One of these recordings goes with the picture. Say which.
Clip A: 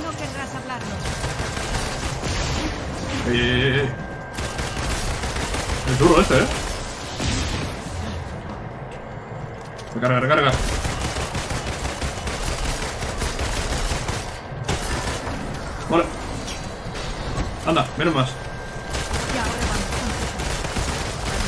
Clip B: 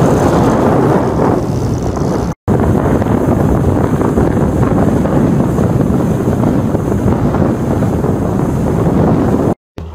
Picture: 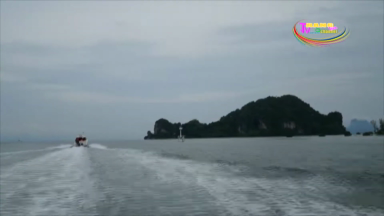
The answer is B